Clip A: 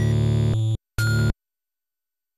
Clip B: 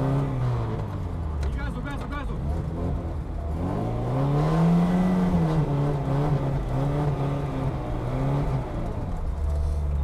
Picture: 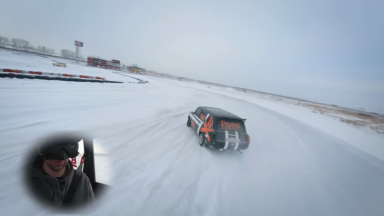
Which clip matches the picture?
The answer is B